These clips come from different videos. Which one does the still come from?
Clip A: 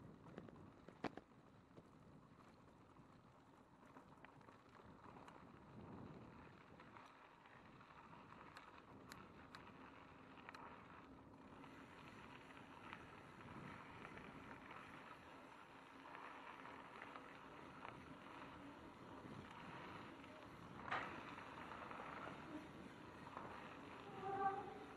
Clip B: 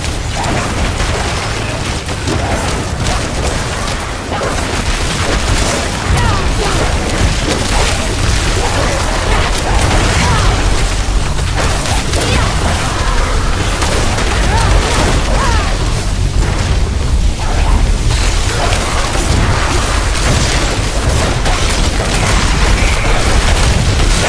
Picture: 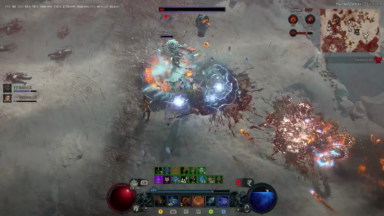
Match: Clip B